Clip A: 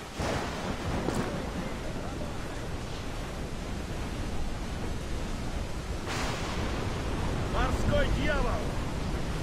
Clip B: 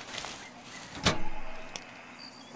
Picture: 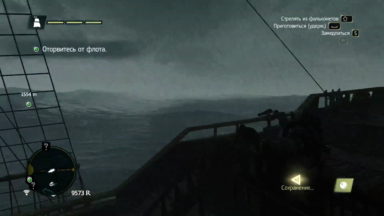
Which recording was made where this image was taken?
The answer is A